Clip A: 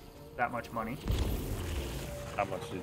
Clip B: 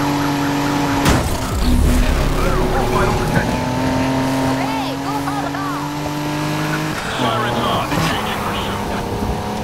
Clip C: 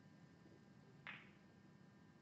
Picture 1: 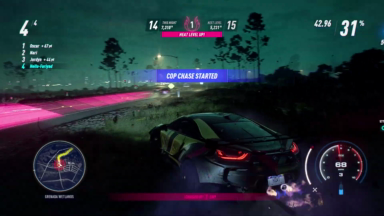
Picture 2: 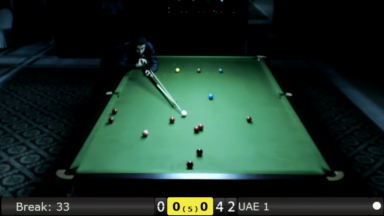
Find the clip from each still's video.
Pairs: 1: B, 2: C